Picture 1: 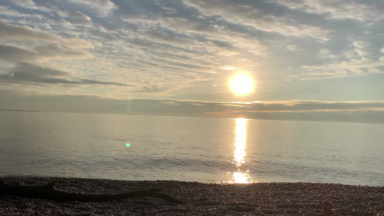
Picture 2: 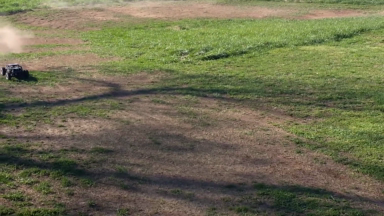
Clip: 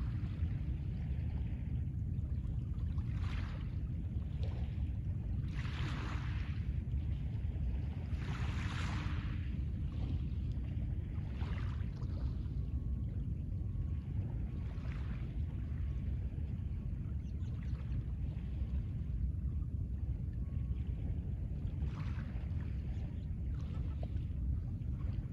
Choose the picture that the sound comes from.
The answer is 1